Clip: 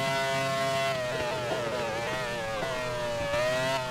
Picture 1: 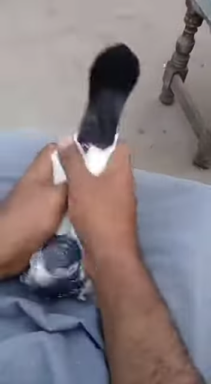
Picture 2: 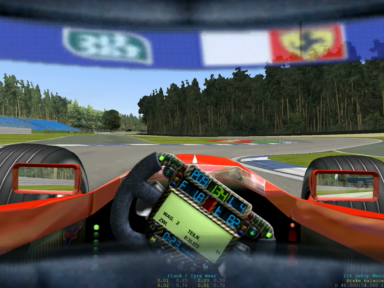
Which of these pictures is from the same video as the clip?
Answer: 2